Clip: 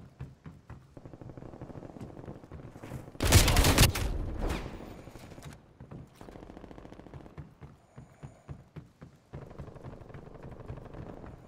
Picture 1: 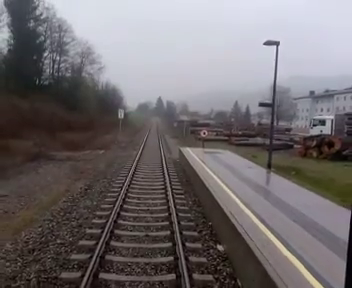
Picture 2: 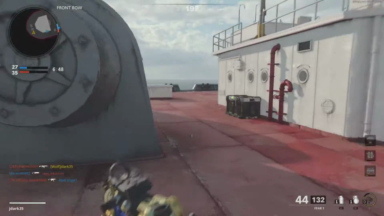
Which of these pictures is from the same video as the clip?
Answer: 2